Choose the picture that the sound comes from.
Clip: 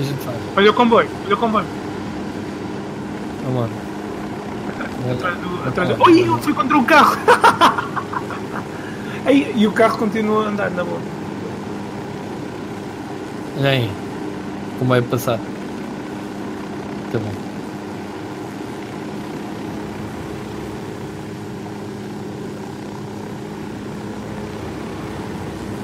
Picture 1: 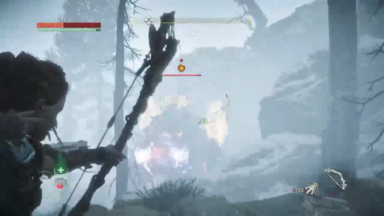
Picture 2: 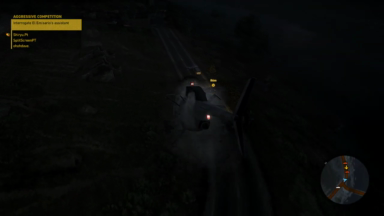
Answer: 2